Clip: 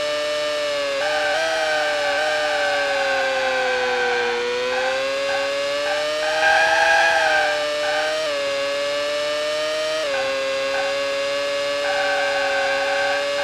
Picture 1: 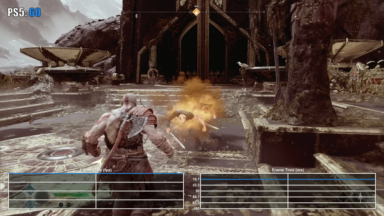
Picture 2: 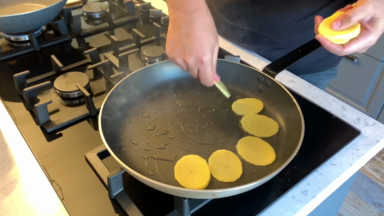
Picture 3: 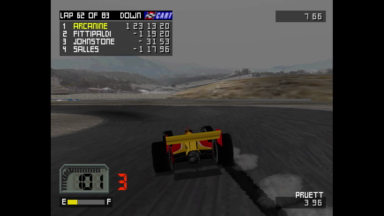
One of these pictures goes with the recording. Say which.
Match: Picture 3